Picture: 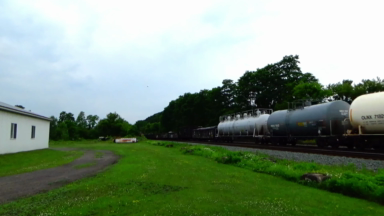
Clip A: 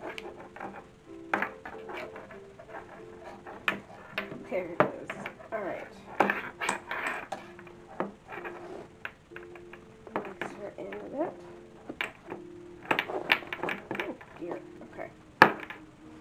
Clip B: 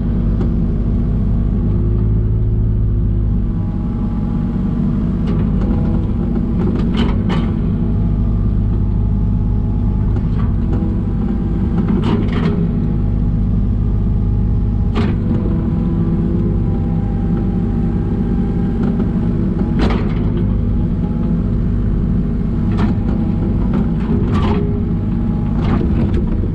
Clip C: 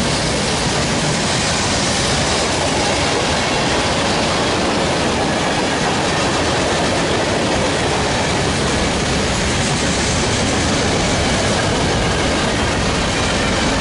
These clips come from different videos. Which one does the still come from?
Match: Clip C